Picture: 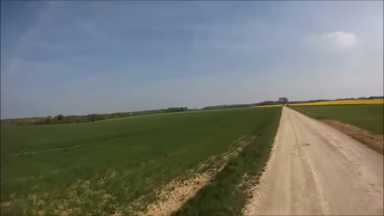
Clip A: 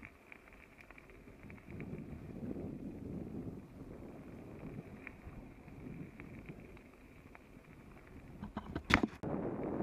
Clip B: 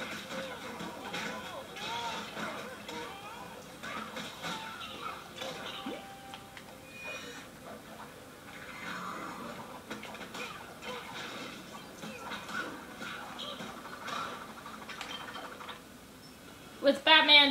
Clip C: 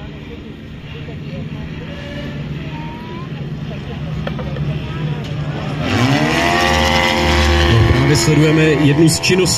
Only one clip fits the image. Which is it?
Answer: A